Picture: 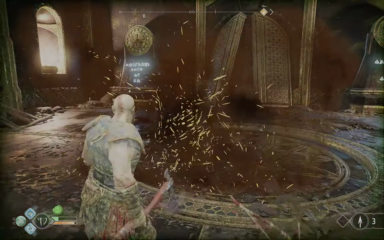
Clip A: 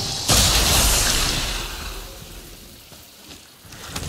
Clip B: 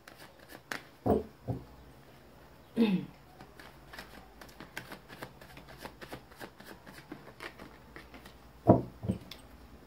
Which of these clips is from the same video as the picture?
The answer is A